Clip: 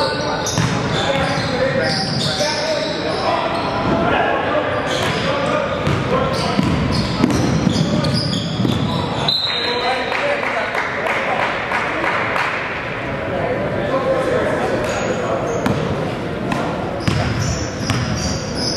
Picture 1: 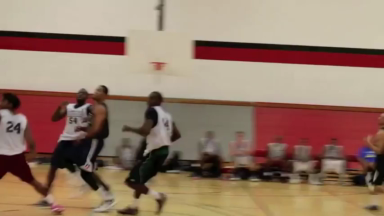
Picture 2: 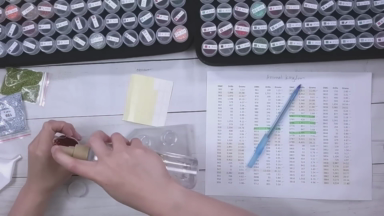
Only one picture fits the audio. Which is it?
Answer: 1